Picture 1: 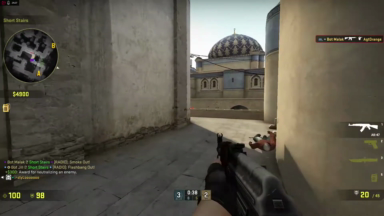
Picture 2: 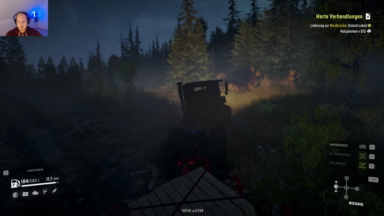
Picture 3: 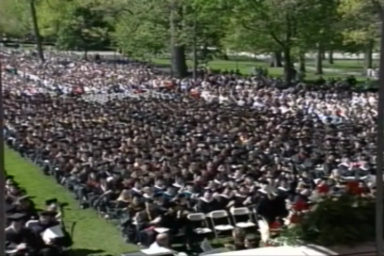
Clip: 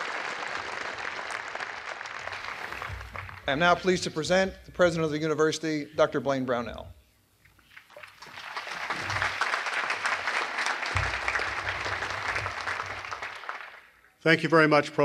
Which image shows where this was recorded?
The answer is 3